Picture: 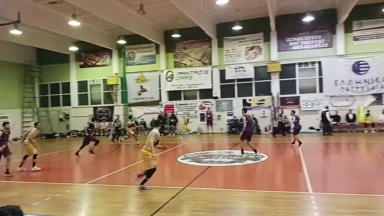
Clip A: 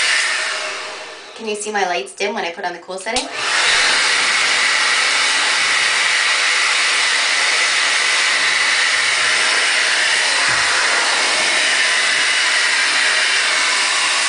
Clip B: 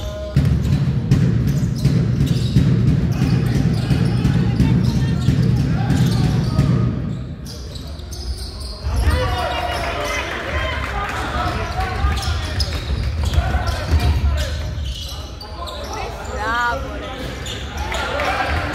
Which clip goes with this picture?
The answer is B